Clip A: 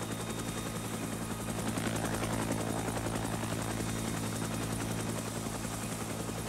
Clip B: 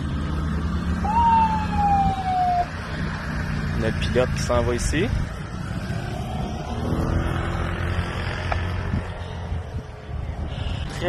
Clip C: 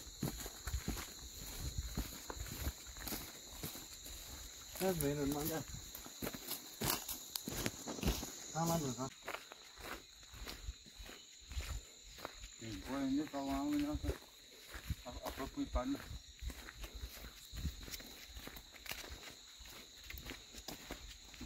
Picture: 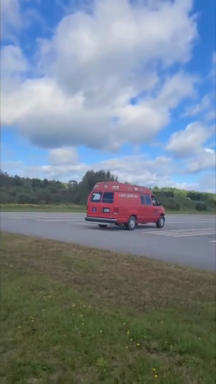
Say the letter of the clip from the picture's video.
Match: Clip B